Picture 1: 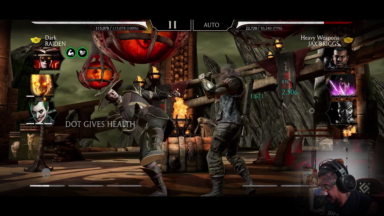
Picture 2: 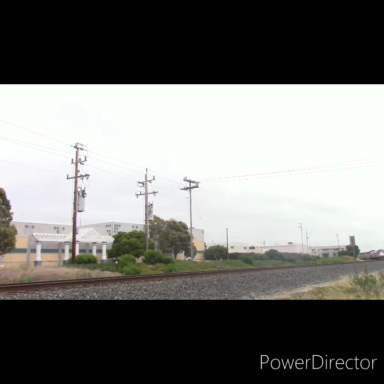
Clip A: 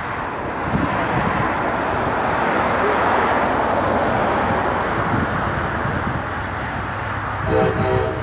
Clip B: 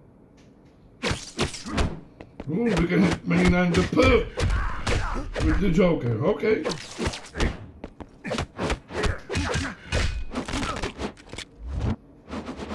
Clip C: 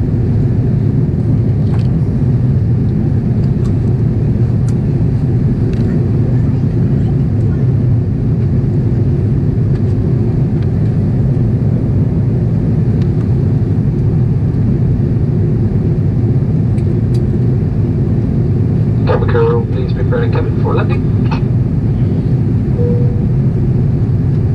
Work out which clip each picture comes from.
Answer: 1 B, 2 A